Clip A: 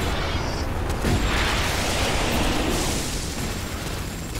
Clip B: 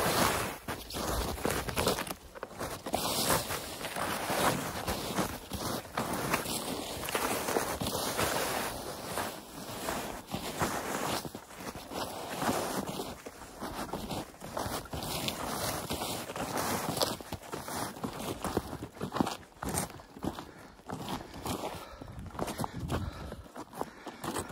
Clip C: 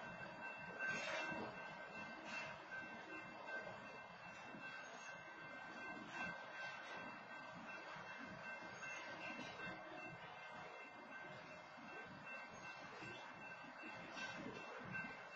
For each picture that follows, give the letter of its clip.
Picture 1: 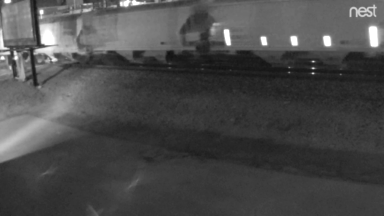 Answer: C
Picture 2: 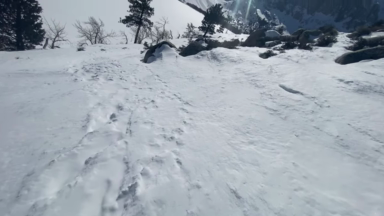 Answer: B